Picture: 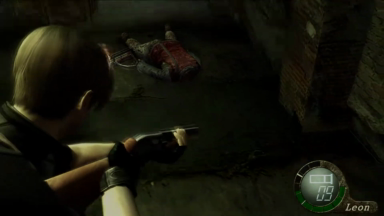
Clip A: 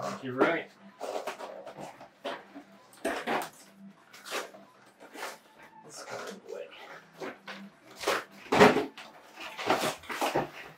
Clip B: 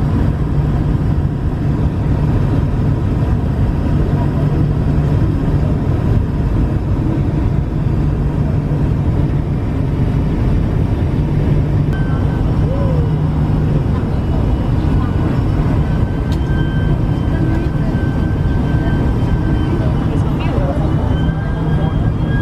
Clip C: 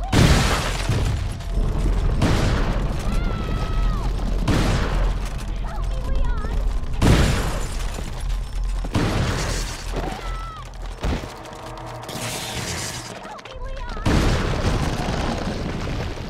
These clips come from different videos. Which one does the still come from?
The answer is C